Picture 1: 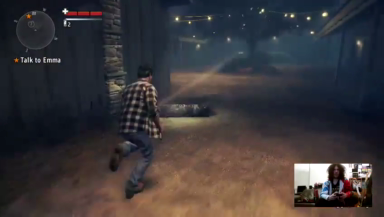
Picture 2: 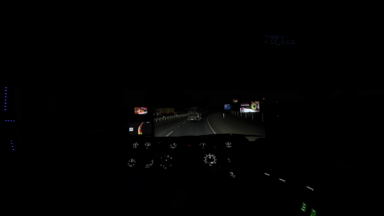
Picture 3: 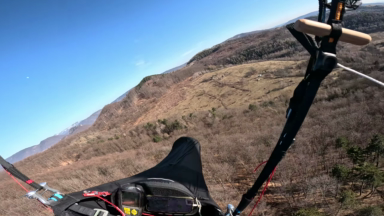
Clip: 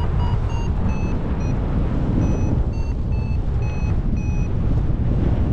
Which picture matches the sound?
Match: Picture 3